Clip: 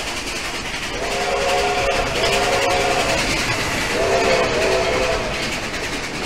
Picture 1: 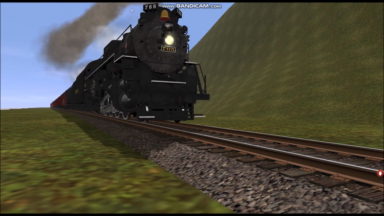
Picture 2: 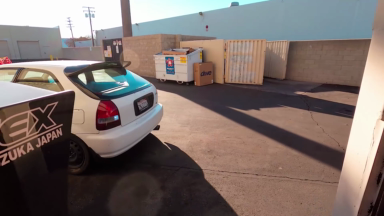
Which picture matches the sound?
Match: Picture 1